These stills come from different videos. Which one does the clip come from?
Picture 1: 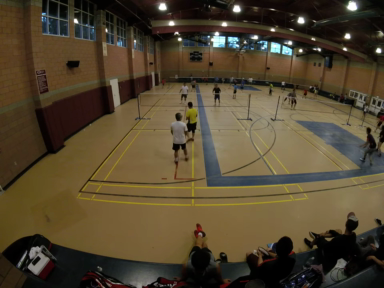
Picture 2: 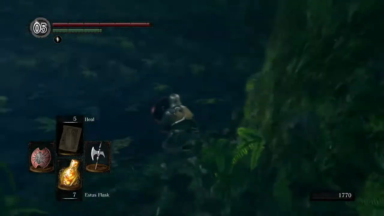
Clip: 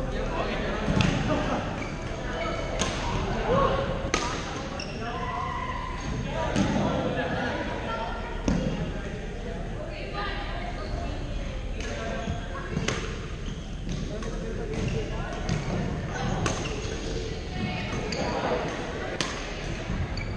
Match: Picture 1